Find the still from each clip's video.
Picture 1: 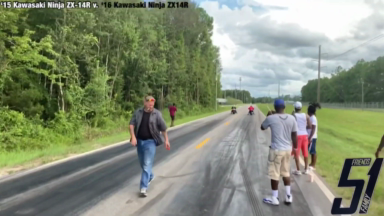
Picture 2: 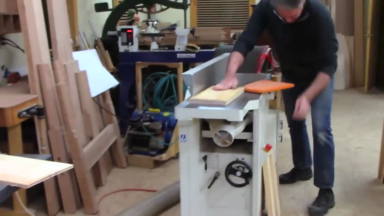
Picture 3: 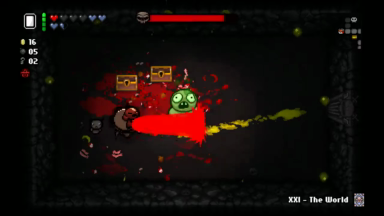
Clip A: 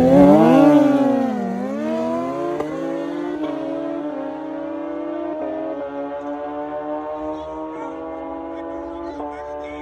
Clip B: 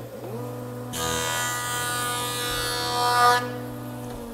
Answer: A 1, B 2